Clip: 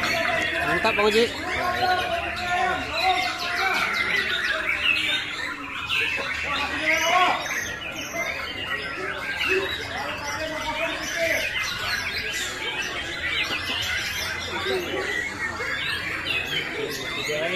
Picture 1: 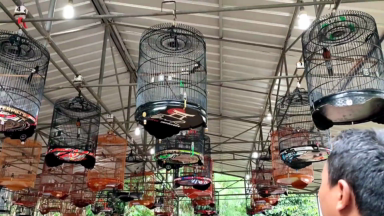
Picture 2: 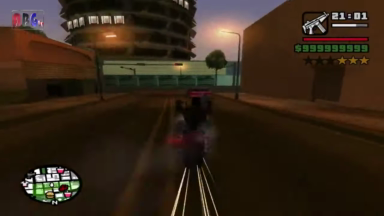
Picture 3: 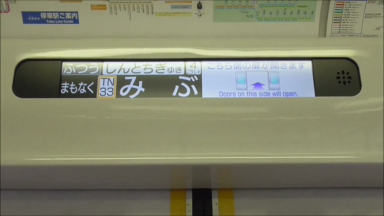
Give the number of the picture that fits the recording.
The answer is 1